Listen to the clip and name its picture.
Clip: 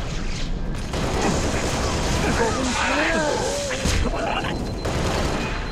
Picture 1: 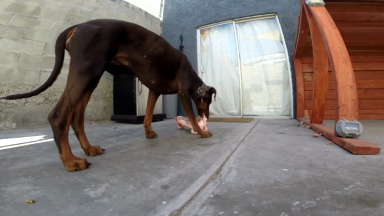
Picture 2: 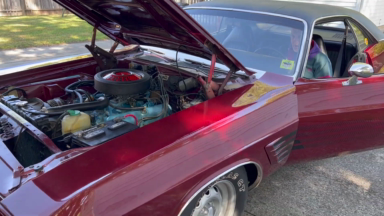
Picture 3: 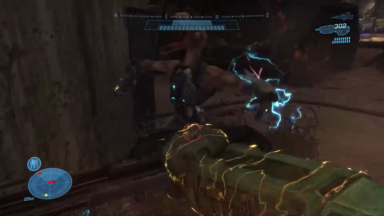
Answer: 3